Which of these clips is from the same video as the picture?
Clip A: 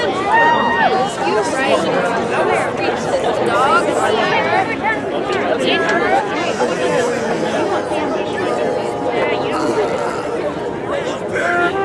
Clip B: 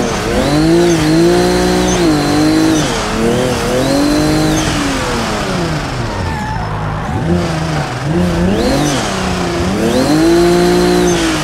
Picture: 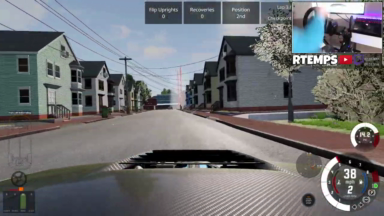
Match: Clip B